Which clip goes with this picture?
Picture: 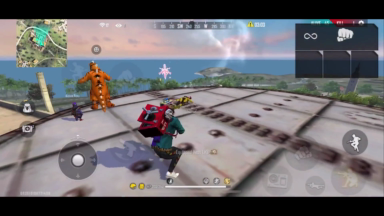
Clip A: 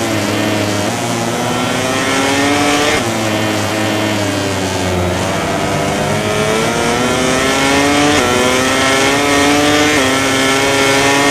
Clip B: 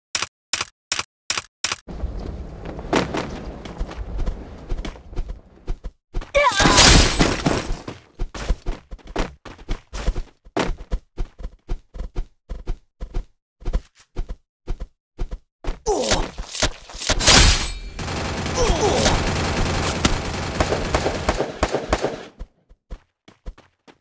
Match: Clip B